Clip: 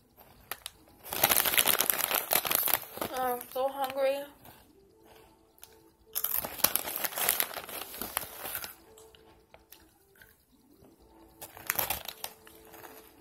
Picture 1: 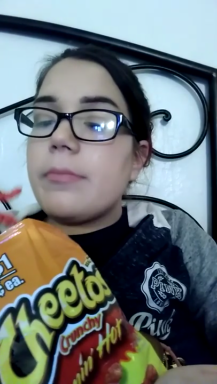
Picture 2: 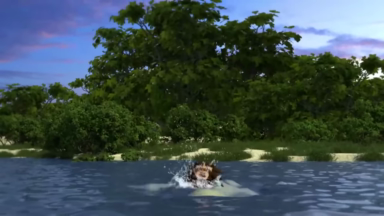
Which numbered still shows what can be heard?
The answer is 1